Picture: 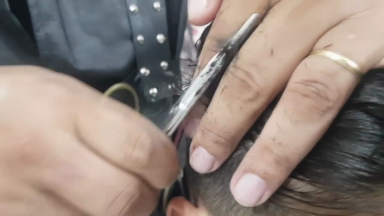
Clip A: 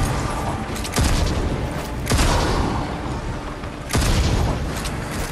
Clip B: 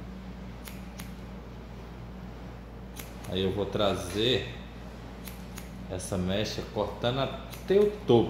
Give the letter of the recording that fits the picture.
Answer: B